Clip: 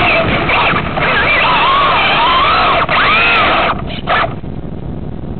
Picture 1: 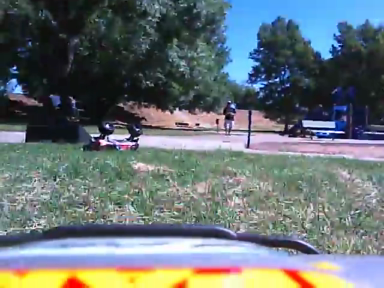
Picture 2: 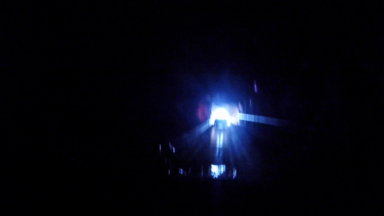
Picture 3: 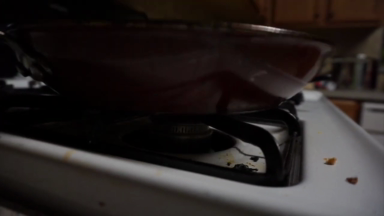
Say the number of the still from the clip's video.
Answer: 1